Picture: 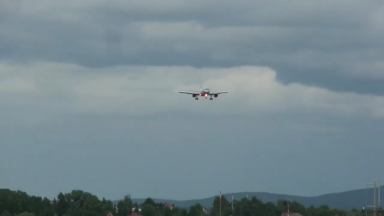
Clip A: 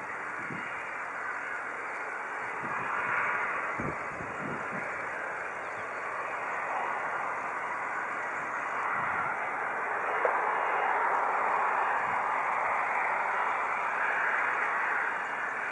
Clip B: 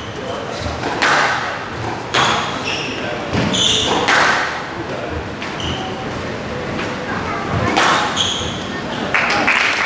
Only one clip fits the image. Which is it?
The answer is A